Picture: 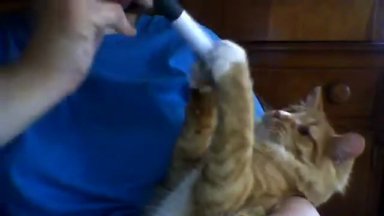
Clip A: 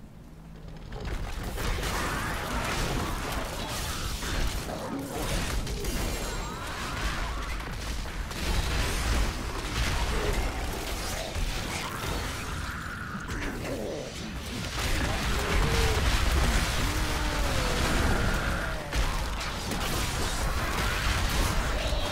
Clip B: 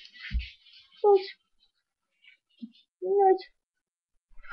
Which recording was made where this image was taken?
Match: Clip B